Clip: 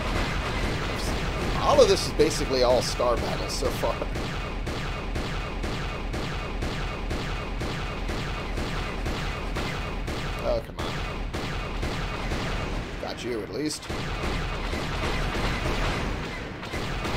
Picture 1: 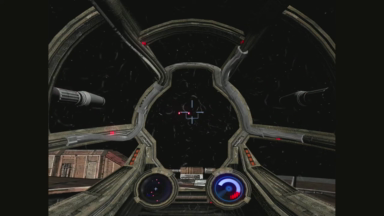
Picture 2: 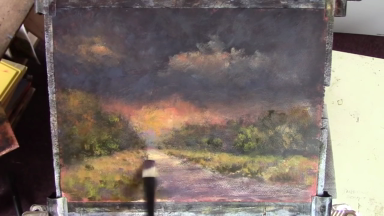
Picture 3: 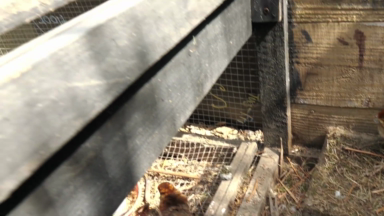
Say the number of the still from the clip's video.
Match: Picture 1